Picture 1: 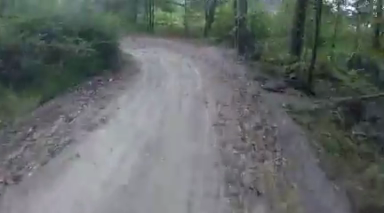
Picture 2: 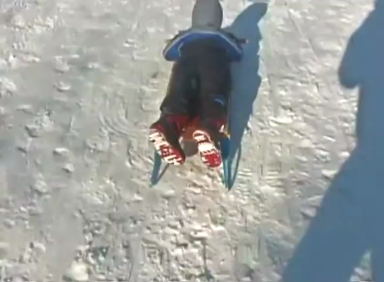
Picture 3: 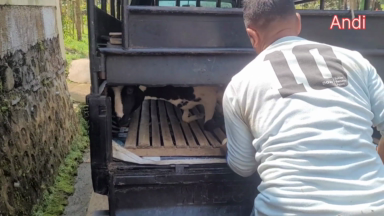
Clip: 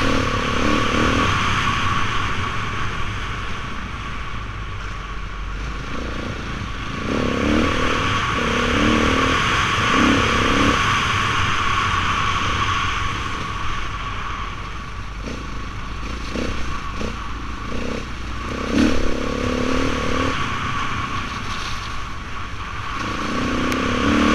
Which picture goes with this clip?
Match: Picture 1